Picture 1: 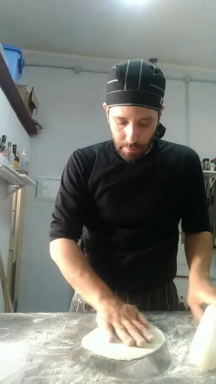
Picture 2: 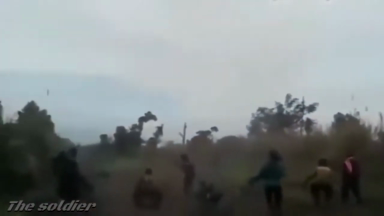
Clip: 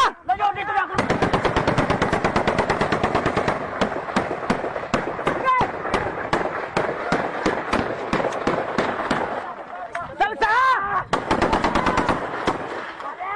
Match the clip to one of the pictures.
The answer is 2